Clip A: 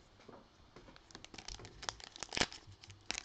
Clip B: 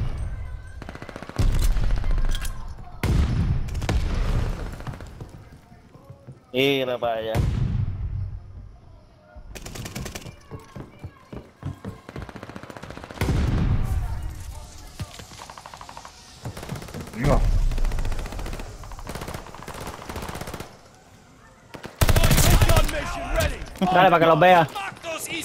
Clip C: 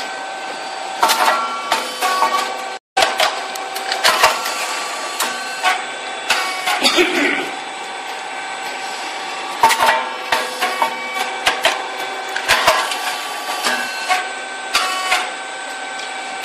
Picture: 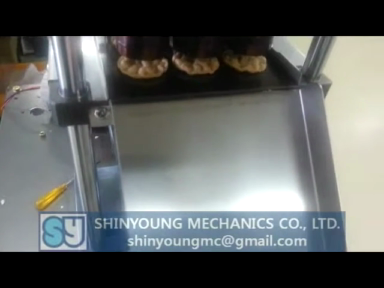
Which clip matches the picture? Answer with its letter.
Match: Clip C